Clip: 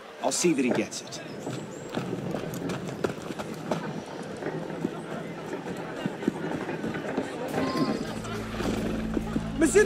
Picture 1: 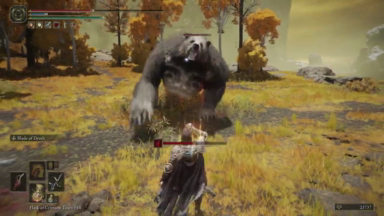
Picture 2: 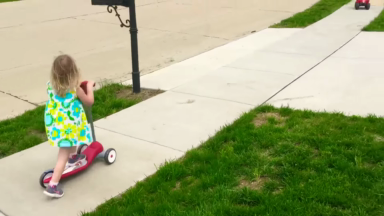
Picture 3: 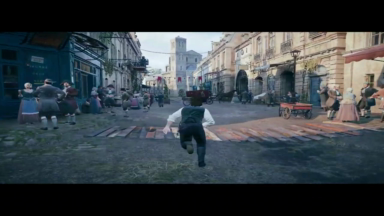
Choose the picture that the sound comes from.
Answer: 3